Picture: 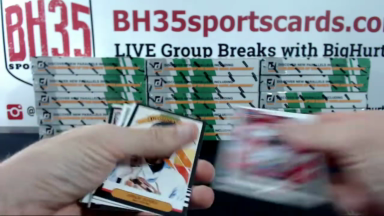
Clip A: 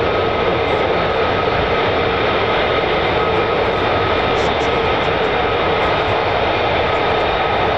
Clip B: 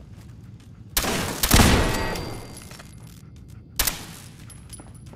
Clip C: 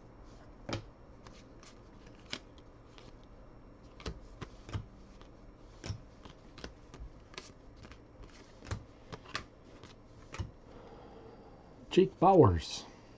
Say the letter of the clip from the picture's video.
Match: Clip C